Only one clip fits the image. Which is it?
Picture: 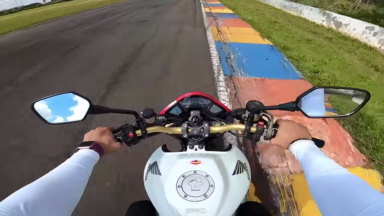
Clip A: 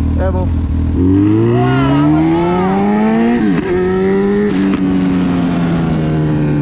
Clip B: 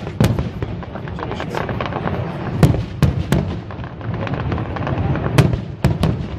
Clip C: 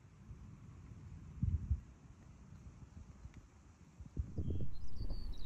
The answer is A